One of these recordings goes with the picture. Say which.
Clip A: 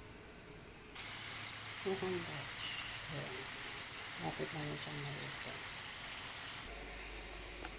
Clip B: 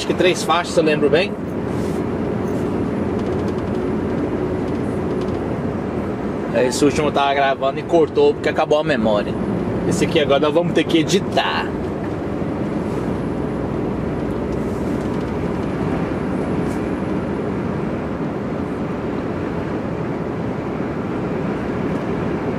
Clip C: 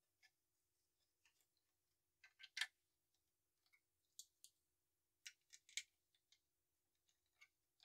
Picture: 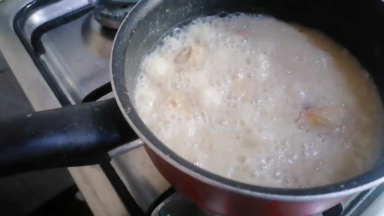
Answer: A